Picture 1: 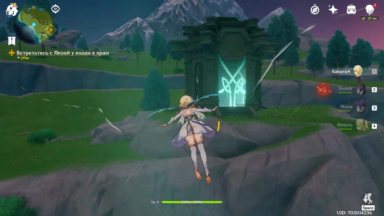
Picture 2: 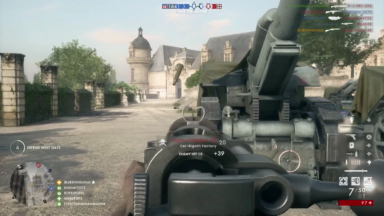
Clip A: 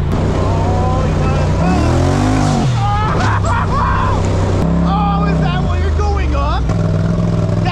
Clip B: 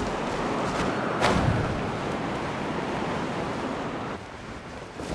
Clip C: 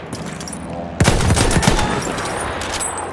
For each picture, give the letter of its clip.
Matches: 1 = B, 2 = C